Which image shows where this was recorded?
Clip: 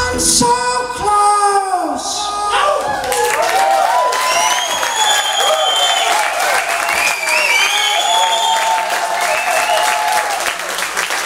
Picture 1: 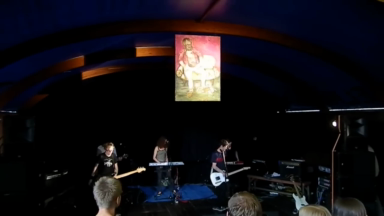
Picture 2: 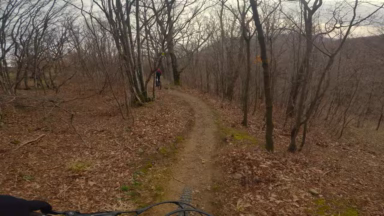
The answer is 1